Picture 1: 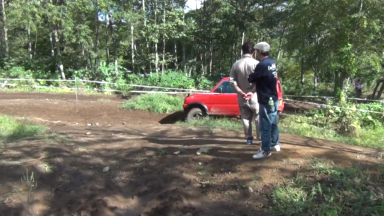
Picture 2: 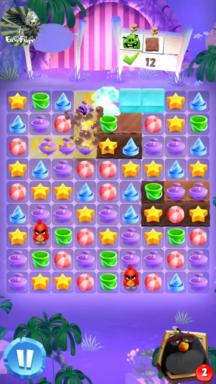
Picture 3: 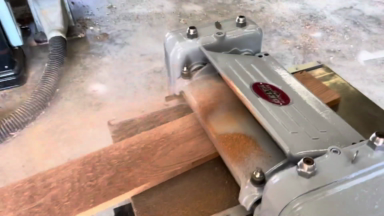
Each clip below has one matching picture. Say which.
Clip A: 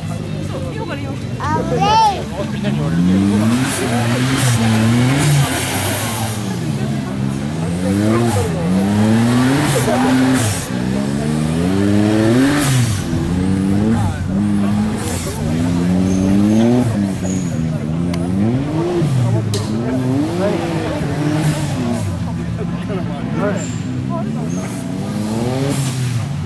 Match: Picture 1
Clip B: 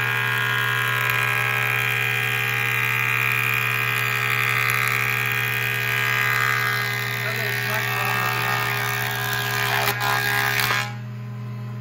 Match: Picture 3